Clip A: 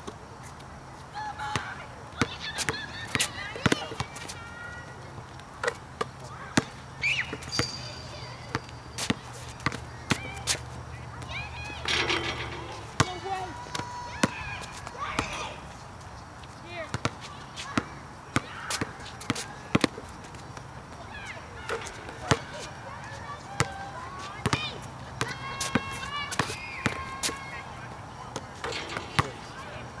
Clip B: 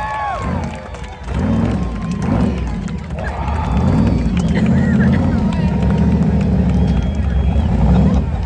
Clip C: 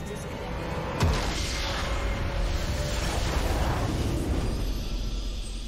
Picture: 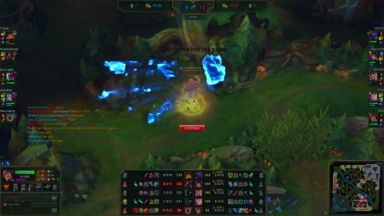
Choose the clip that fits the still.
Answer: C